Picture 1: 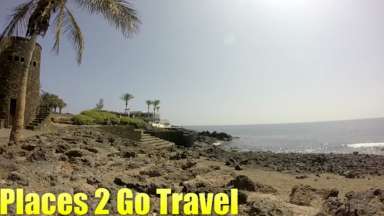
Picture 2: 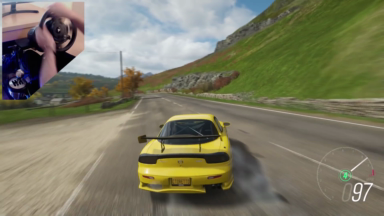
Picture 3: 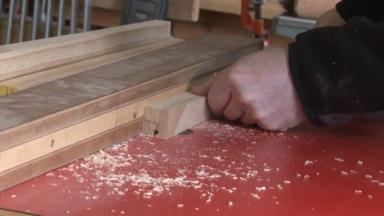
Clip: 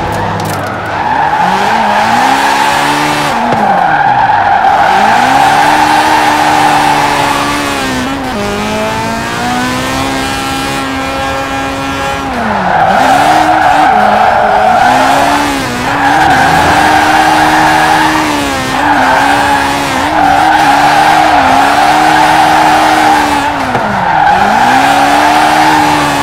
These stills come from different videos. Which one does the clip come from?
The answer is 2